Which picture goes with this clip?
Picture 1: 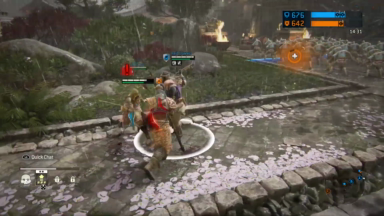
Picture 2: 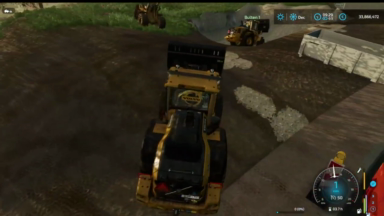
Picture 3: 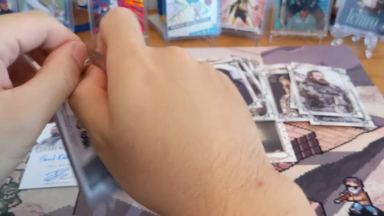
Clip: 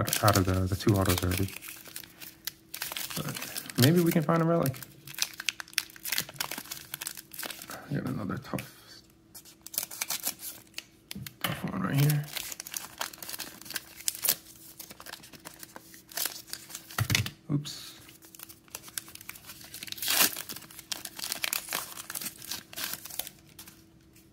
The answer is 3